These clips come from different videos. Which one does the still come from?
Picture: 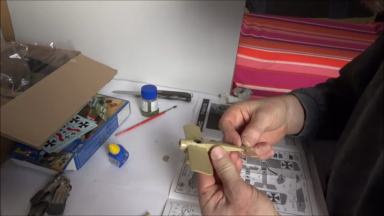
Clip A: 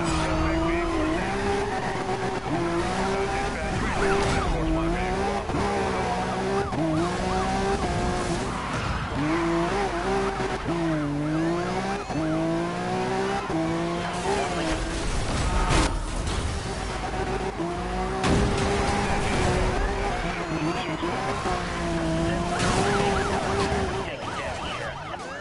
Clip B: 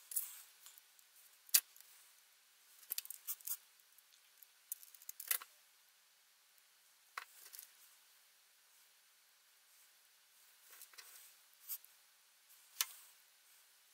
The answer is B